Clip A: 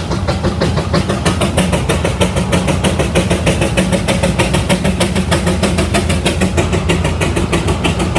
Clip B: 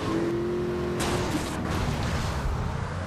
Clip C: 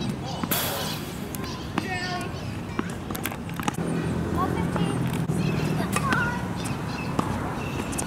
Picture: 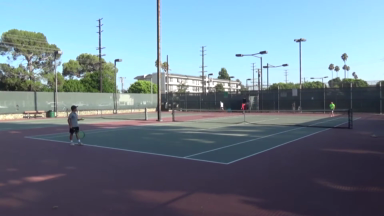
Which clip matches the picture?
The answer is C